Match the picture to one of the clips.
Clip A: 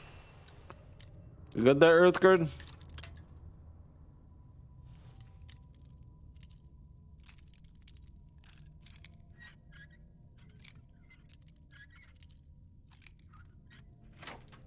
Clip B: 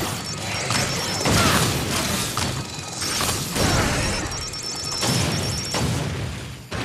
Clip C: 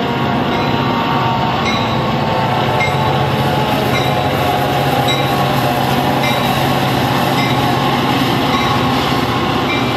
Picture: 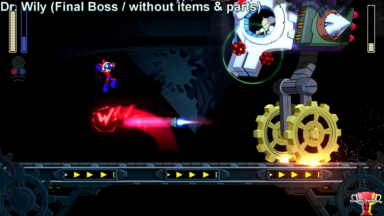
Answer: B